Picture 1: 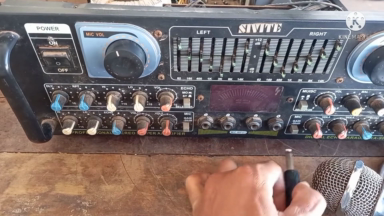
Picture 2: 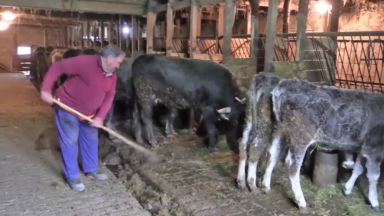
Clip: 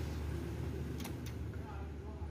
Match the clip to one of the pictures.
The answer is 1